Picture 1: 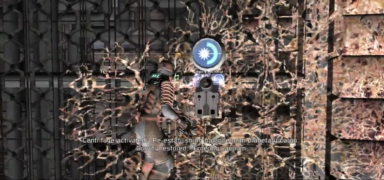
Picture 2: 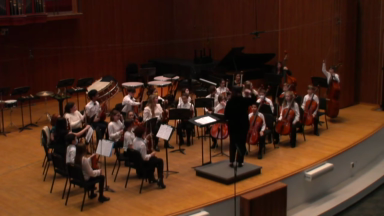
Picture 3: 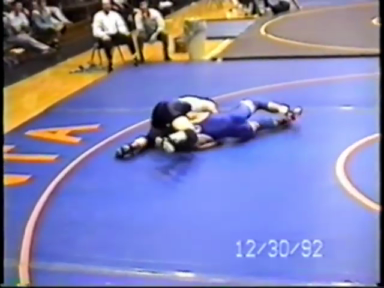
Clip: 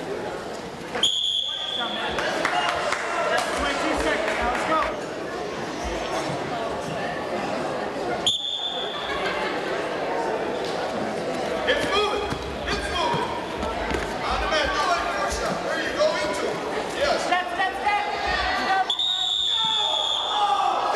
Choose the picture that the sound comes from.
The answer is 3